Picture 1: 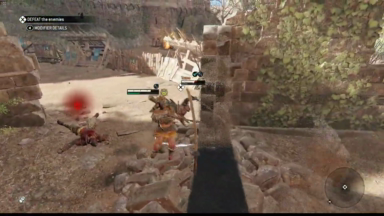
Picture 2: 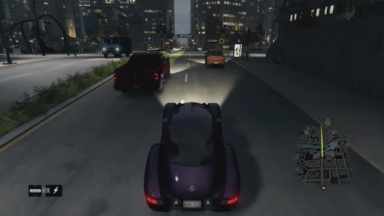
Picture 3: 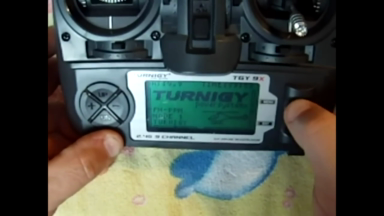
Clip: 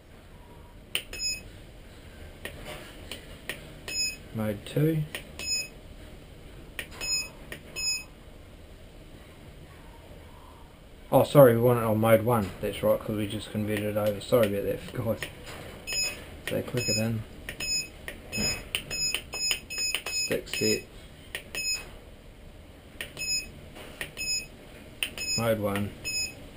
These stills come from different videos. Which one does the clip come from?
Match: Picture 3